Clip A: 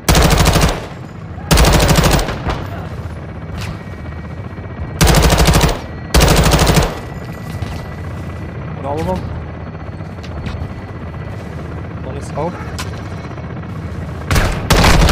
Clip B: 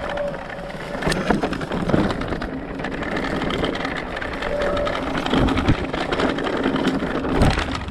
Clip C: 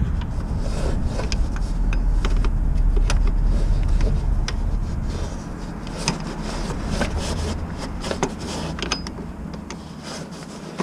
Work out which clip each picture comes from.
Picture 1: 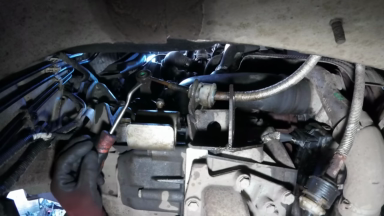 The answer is C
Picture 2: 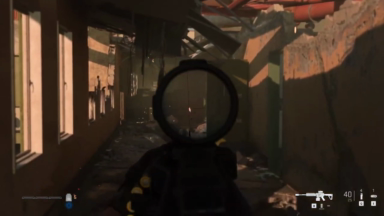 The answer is A